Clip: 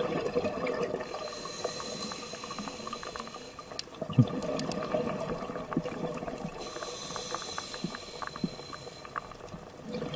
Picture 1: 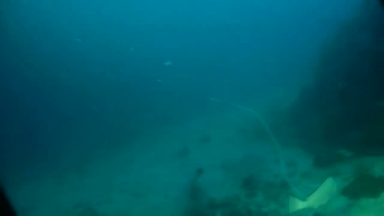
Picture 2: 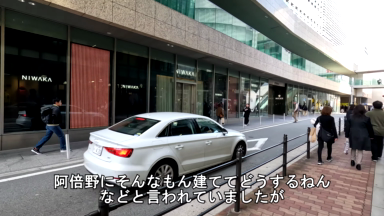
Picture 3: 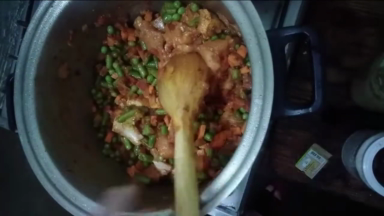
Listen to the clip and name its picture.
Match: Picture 1